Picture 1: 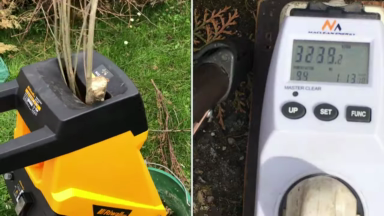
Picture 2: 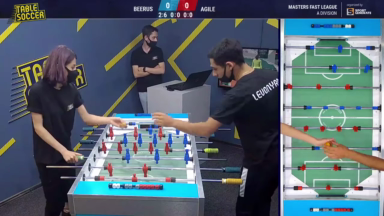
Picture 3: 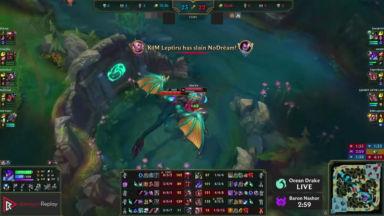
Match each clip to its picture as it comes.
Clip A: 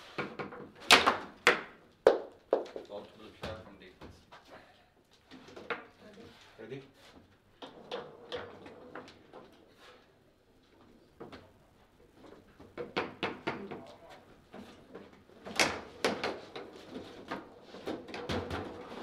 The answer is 2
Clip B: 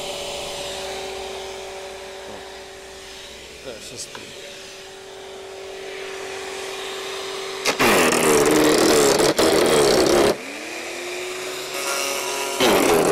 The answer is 1